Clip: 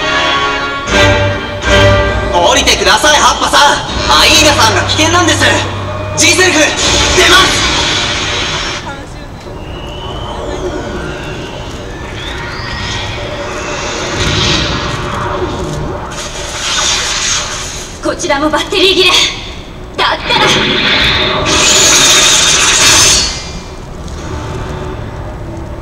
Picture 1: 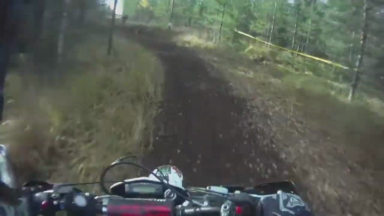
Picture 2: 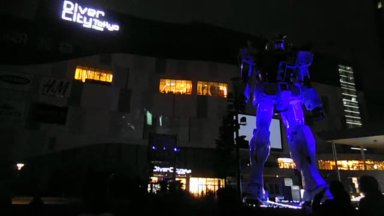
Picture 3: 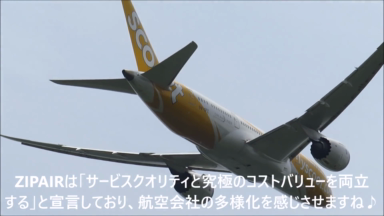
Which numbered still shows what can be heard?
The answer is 2